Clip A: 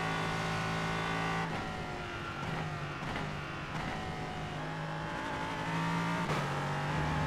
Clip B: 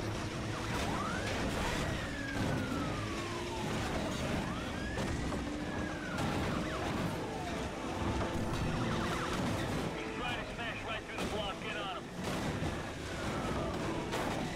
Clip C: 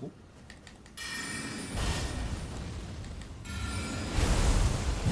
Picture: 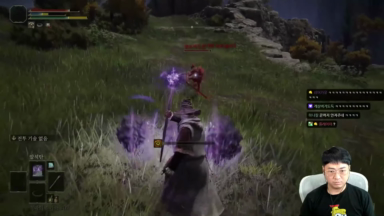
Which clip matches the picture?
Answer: C